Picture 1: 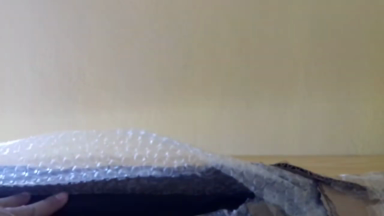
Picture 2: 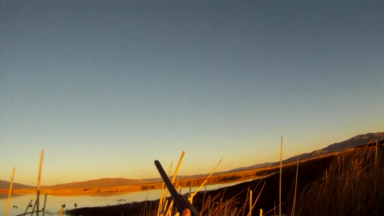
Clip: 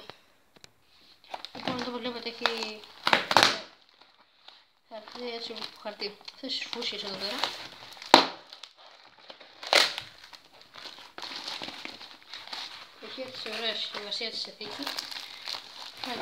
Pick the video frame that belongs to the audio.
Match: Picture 1